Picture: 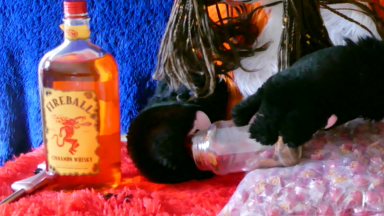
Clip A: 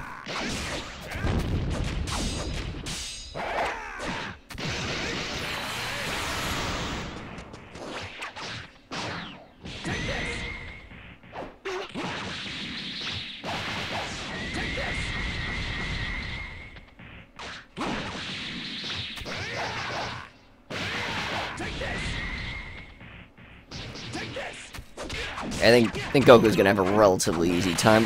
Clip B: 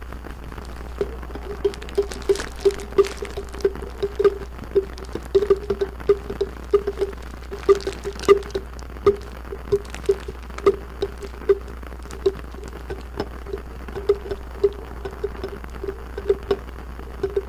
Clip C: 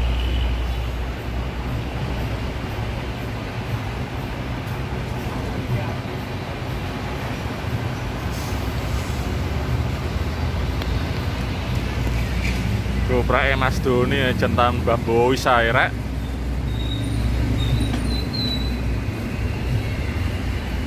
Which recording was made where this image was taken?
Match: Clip B